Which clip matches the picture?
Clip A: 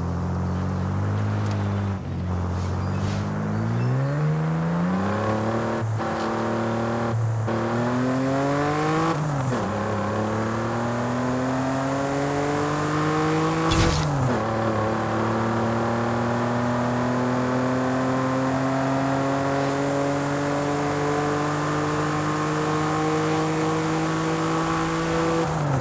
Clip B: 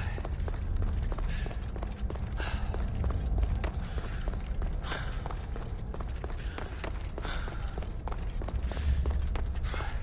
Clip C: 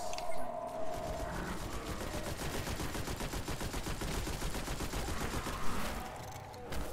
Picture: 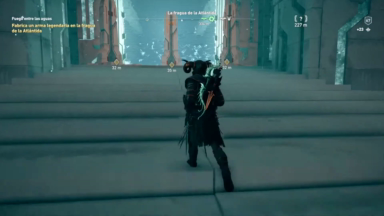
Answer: B